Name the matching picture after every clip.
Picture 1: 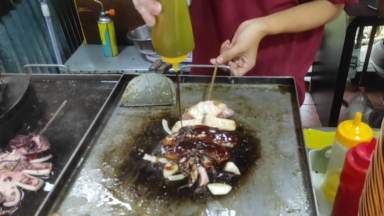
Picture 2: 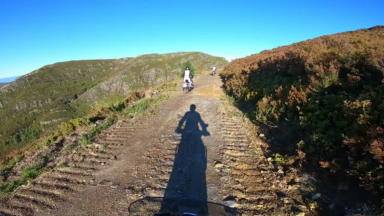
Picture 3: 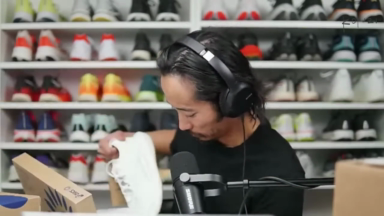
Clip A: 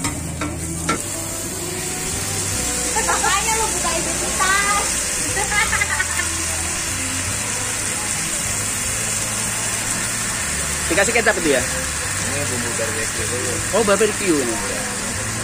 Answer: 1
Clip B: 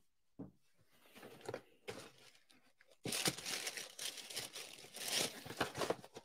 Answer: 3